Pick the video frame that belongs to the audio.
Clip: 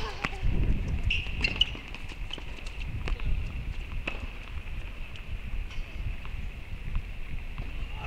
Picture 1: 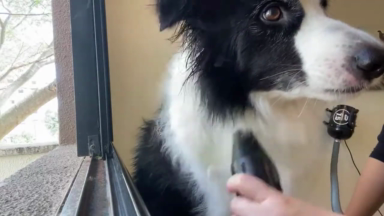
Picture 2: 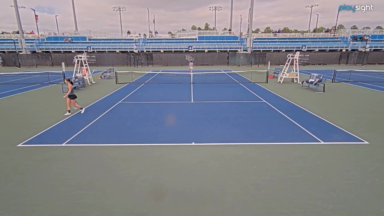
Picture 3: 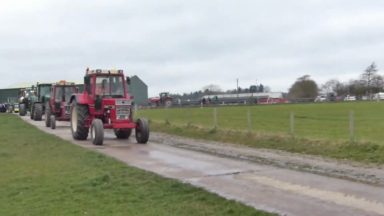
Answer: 2